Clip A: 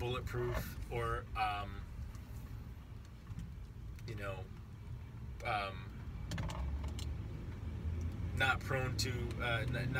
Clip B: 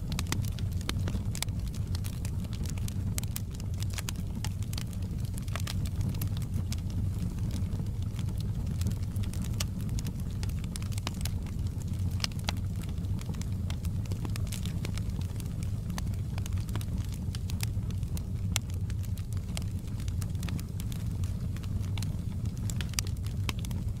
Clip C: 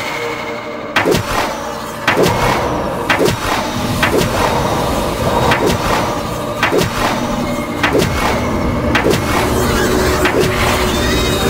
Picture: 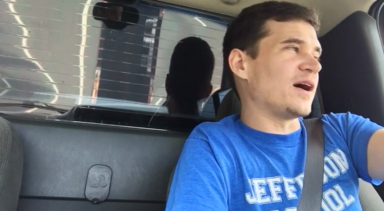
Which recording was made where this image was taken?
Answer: A